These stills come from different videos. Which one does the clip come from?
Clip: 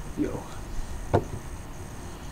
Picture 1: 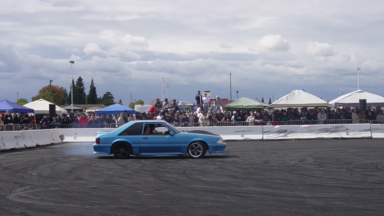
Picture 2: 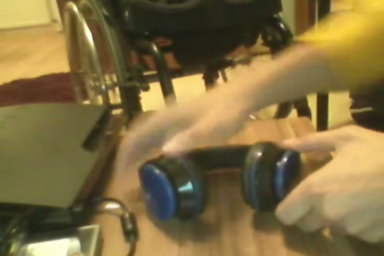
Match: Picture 2